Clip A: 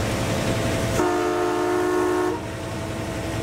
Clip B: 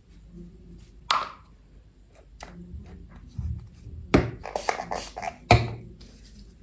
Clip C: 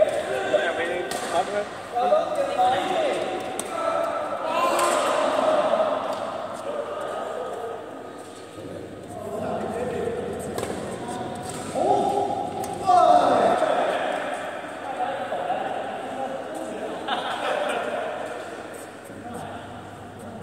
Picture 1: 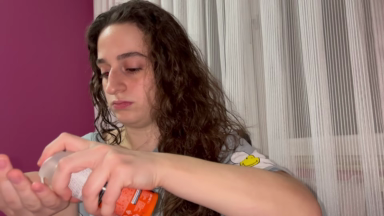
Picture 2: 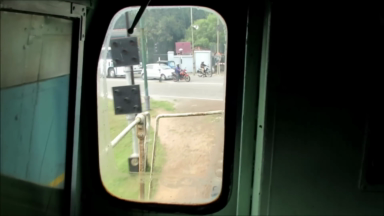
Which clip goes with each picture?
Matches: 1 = B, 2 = A